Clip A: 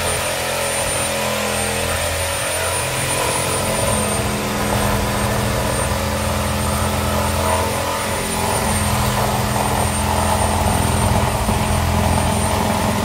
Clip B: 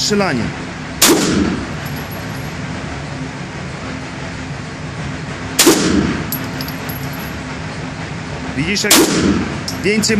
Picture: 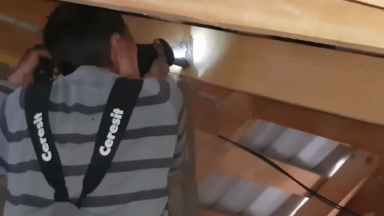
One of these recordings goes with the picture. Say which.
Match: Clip A